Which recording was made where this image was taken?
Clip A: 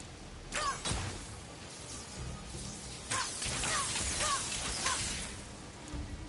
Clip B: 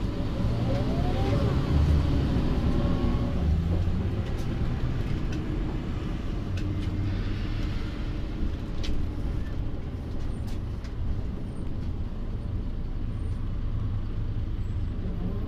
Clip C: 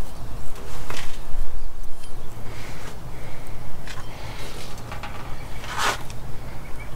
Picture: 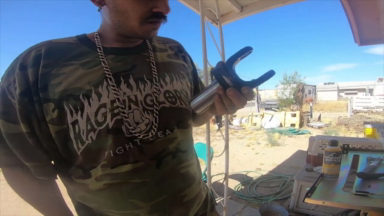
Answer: C